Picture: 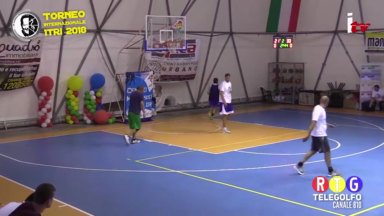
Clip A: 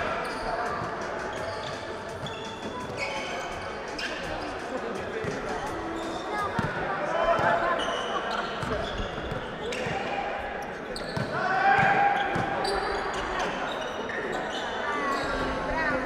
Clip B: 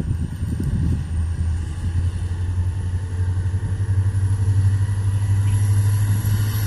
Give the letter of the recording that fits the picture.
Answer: A